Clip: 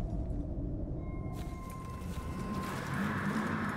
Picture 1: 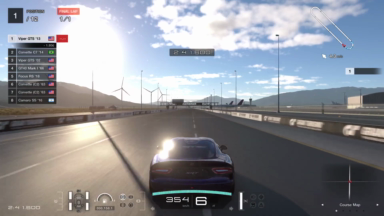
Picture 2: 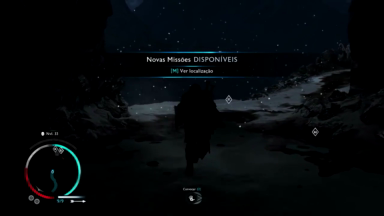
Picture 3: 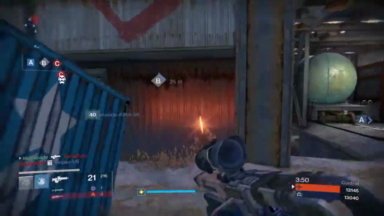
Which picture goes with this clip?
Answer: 2